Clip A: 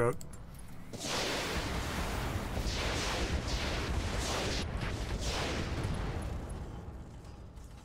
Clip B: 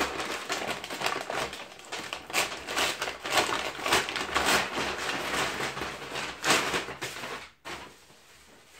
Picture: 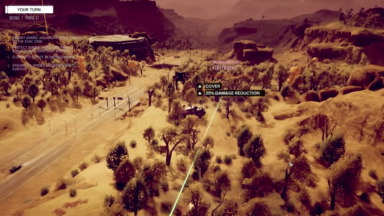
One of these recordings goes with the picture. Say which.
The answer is A